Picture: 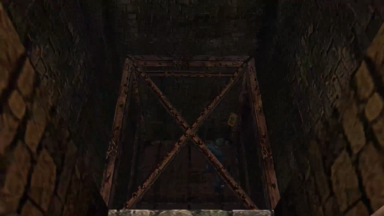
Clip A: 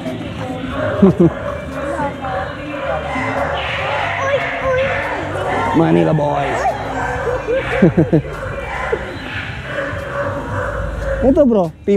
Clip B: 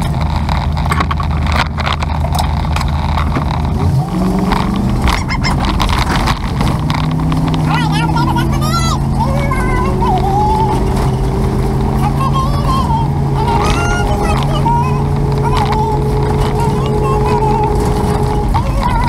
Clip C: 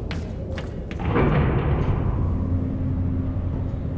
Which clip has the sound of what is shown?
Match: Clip C